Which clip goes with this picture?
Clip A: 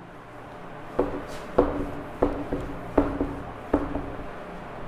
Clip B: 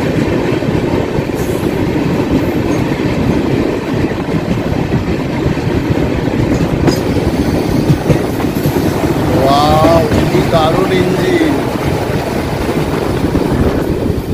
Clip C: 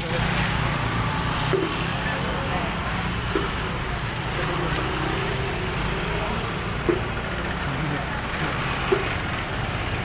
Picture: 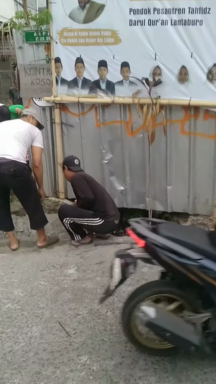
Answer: C